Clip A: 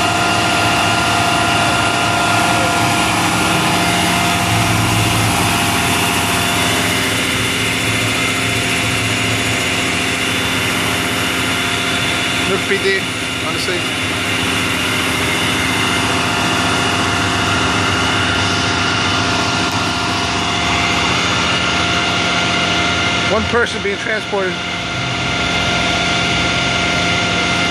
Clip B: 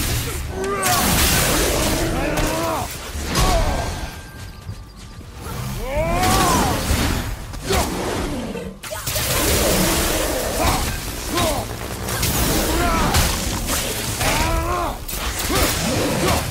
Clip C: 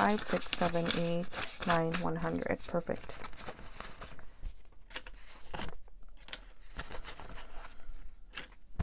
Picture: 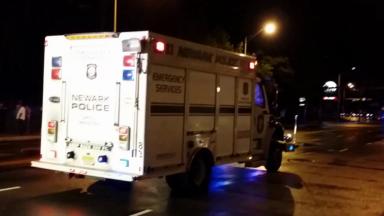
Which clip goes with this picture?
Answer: A